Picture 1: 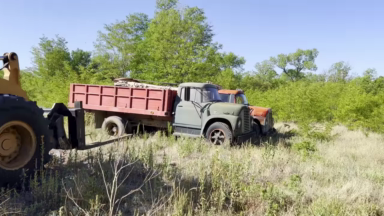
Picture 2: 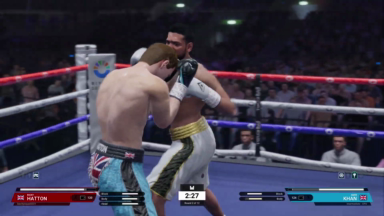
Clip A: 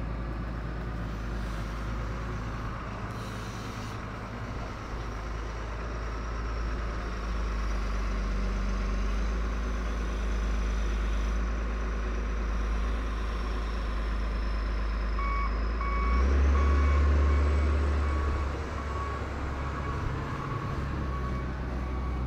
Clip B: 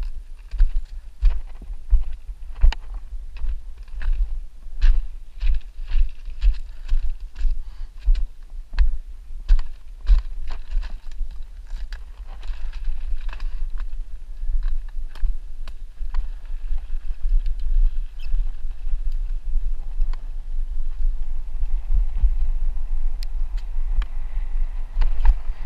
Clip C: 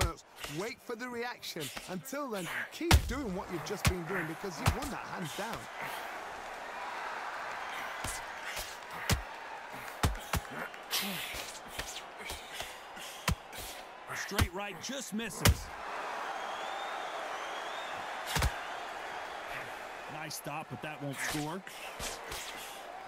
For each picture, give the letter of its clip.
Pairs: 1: A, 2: C